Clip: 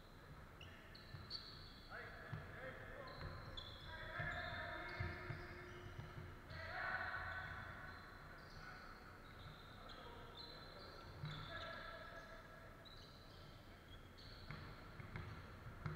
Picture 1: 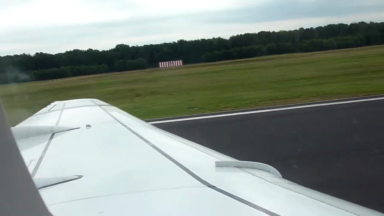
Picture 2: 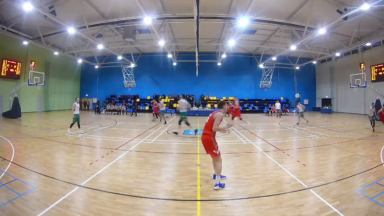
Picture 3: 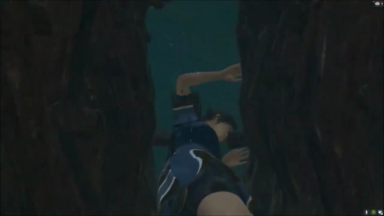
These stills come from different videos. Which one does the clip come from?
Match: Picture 2